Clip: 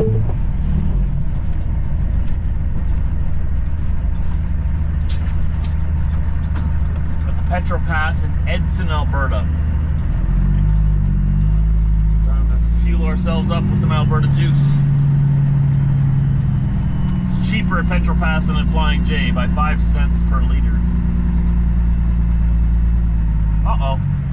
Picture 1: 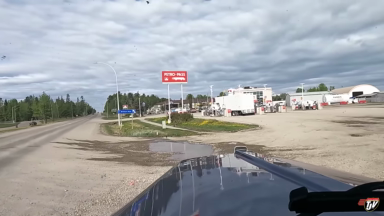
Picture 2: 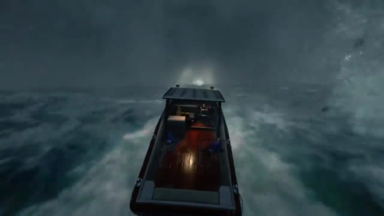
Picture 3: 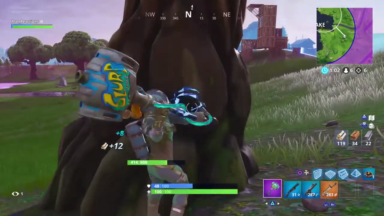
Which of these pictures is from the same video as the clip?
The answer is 1